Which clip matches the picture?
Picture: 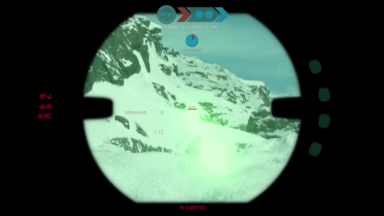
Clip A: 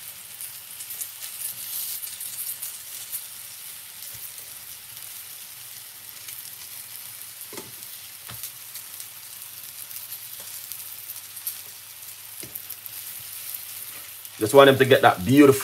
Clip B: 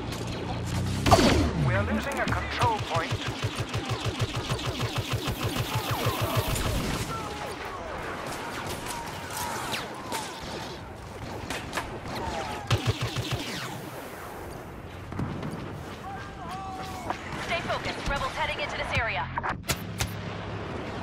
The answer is B